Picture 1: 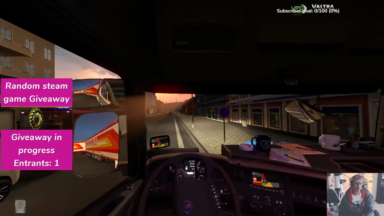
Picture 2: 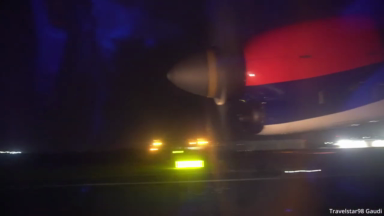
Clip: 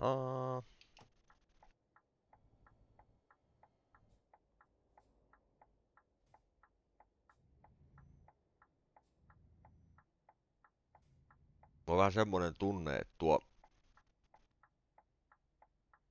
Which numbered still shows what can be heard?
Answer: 1